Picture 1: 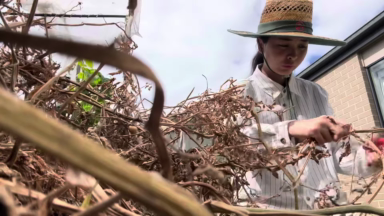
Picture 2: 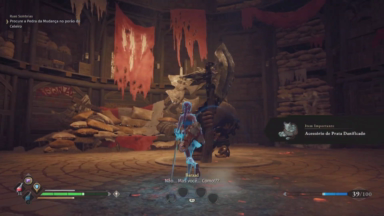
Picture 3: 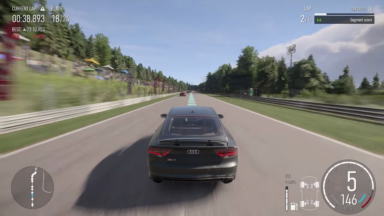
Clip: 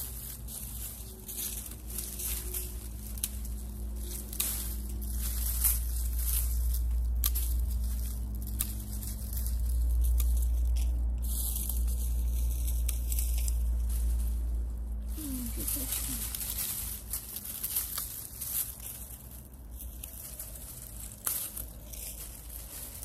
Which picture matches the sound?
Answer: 1